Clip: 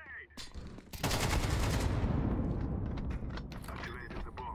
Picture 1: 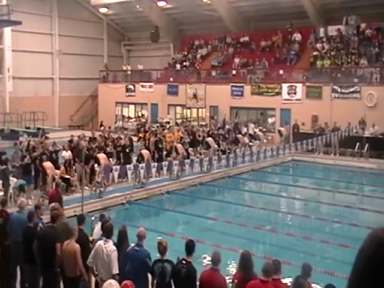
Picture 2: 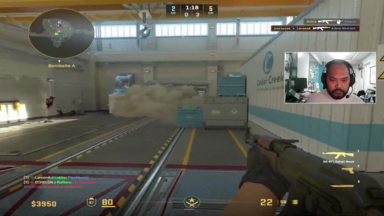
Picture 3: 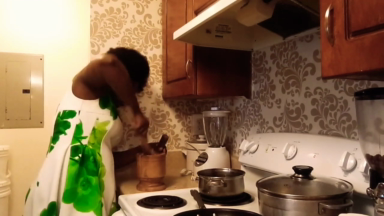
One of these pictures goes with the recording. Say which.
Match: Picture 2